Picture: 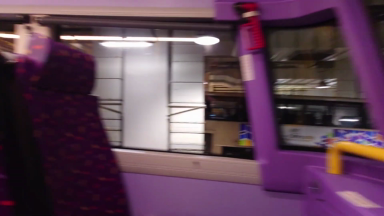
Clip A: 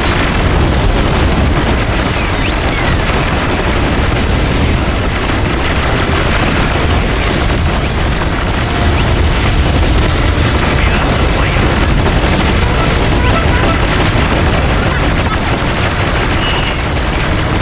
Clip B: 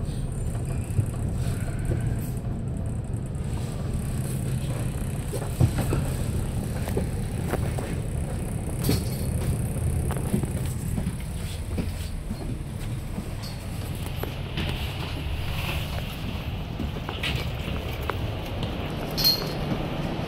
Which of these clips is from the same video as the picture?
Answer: B